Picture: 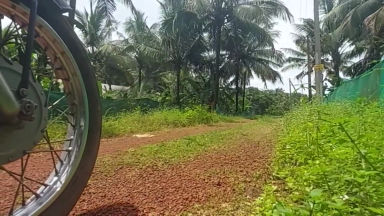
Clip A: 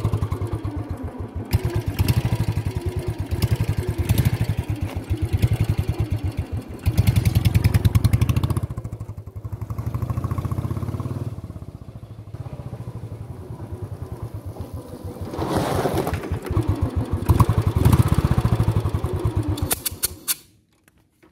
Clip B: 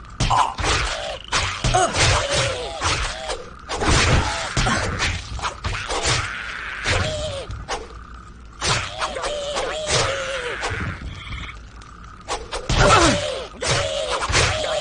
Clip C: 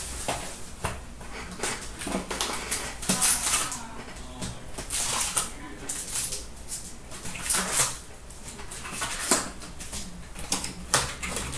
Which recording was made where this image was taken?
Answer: A